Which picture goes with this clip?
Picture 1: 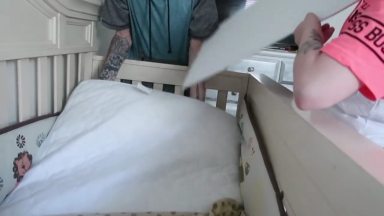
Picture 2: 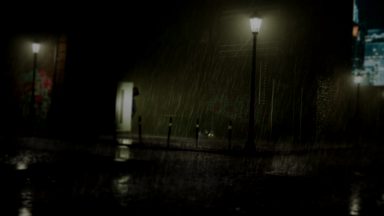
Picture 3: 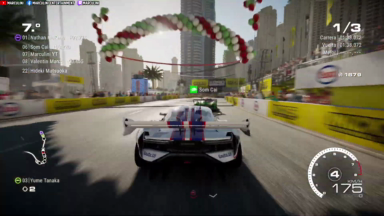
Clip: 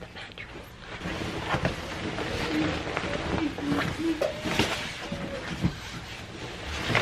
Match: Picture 1